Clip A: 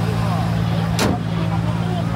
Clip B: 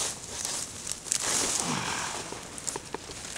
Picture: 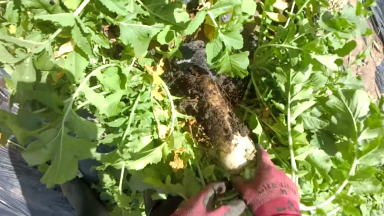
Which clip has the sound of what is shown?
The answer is B